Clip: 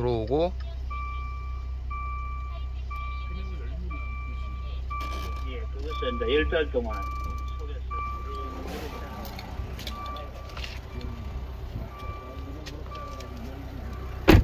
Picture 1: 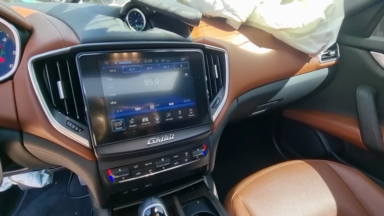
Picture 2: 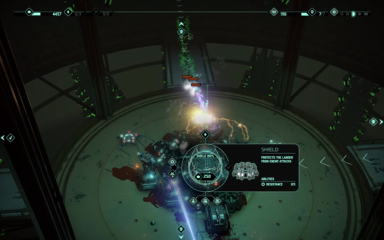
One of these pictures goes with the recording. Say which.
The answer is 1